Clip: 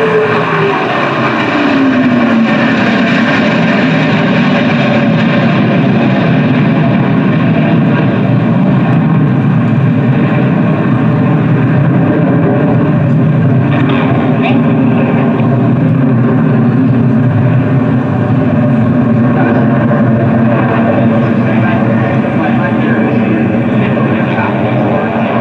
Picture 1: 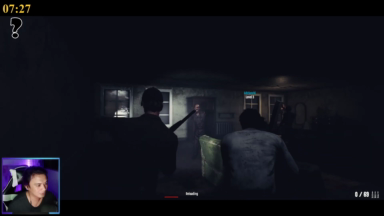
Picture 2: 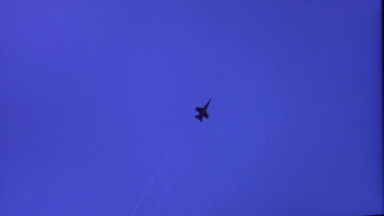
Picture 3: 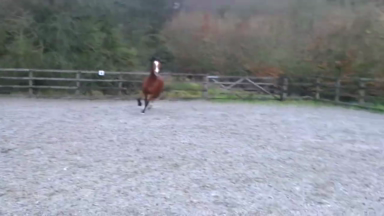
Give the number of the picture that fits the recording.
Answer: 2